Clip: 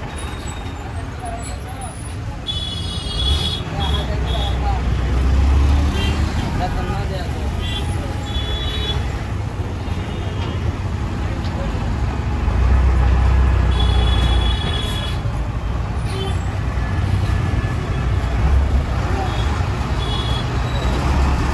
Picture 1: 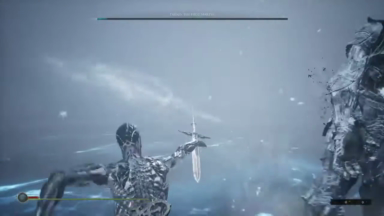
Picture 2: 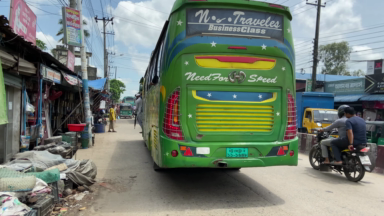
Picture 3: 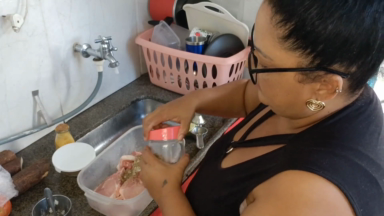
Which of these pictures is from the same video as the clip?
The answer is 2